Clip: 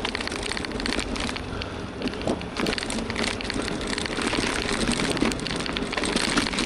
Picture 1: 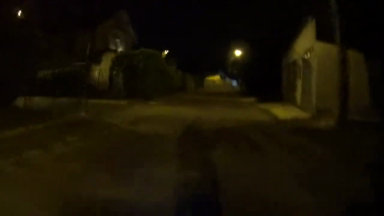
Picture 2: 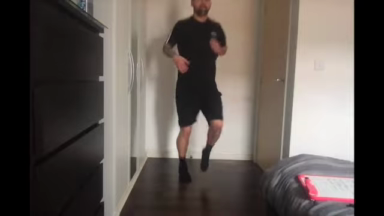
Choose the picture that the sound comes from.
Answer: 1